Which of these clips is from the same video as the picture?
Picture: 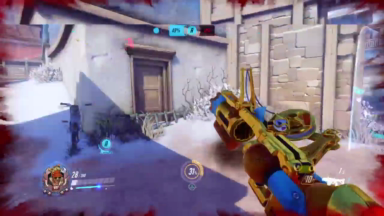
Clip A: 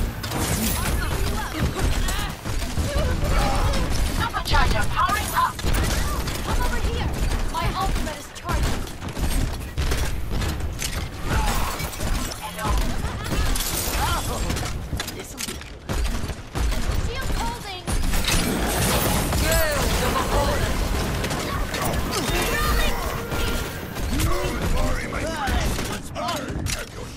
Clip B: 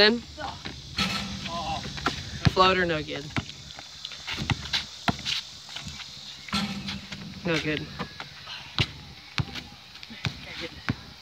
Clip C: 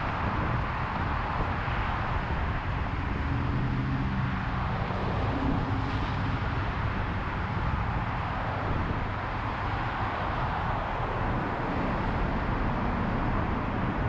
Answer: A